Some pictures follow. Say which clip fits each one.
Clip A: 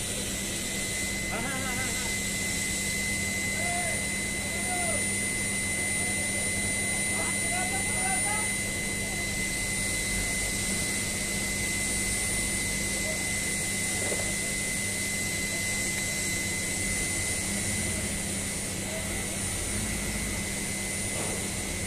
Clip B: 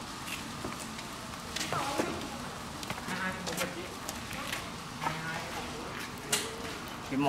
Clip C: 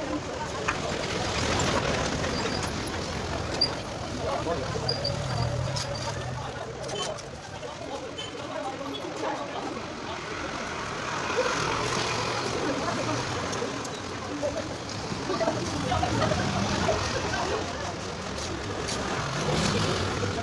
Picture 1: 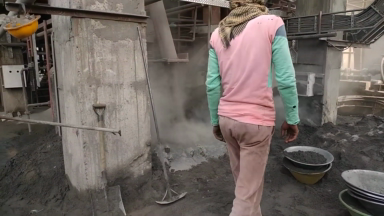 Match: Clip A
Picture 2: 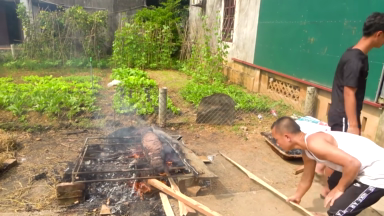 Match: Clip B